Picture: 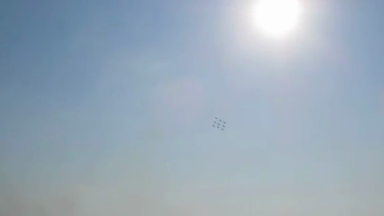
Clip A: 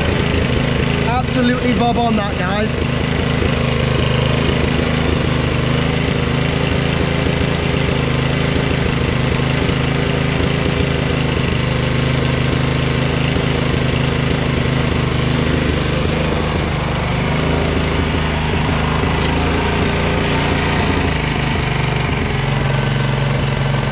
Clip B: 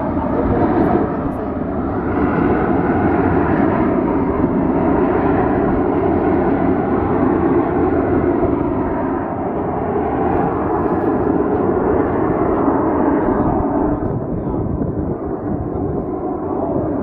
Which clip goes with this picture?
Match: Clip B